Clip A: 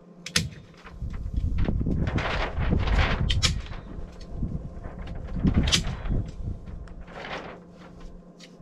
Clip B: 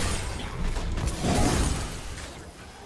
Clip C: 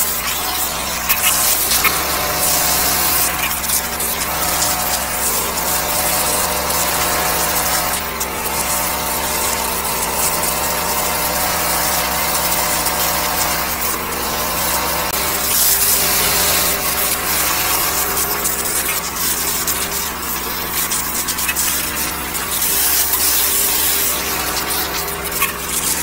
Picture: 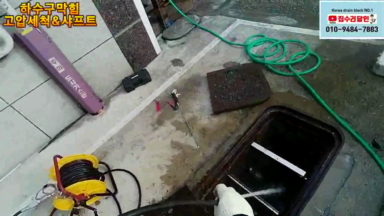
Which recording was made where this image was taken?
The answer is C